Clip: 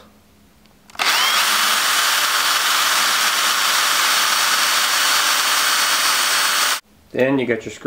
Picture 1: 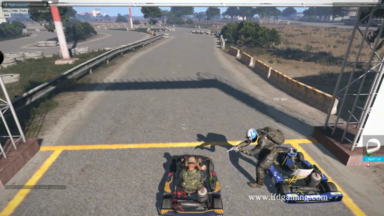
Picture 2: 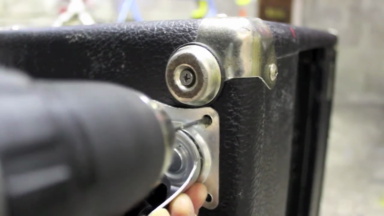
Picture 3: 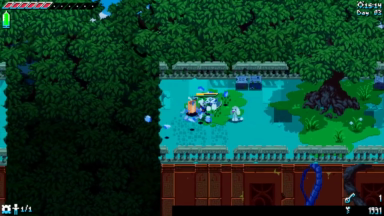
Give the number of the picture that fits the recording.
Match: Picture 2